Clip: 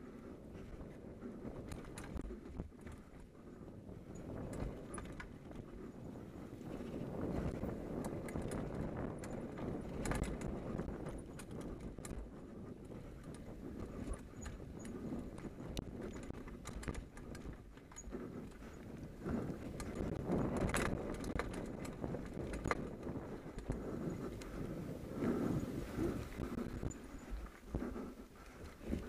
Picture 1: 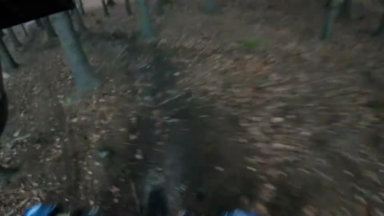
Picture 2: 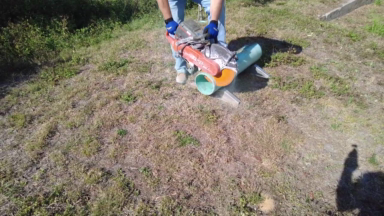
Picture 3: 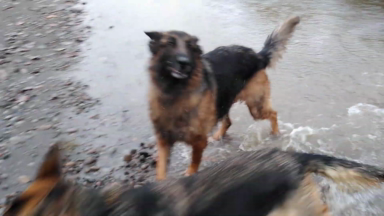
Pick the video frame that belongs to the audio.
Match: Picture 1